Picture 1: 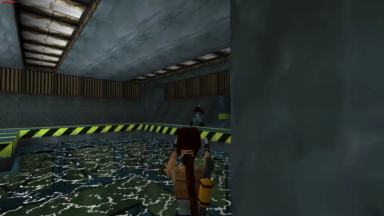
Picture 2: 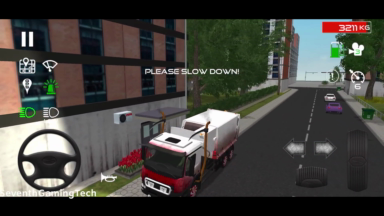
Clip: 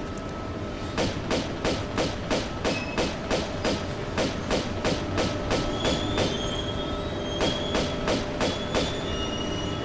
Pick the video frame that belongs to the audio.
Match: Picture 1